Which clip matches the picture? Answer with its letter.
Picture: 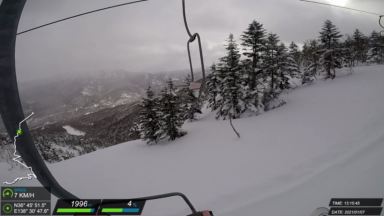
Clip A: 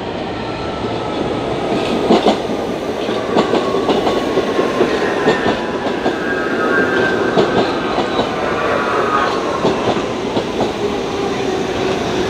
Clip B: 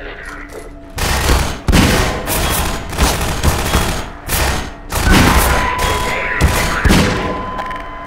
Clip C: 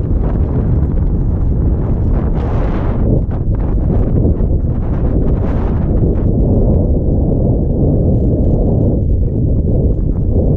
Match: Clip C